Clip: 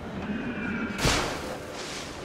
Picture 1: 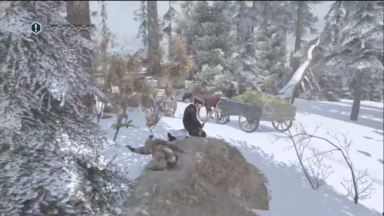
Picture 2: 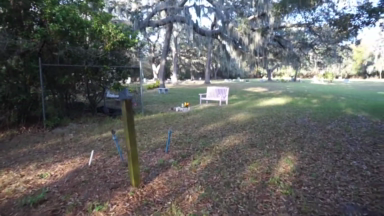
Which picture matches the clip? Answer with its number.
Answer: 1